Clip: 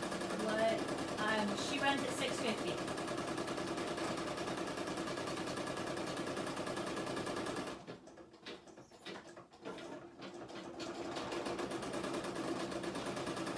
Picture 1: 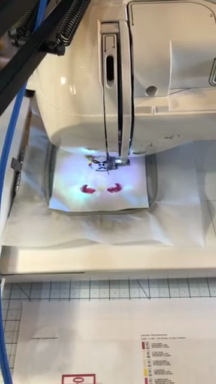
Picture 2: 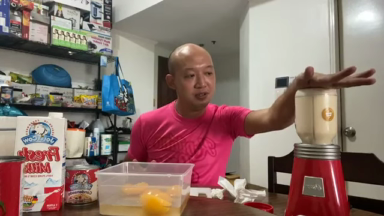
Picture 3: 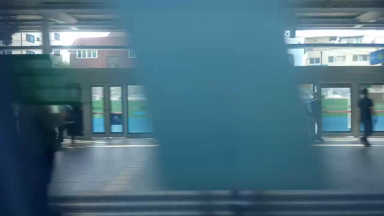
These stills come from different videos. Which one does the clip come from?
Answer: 1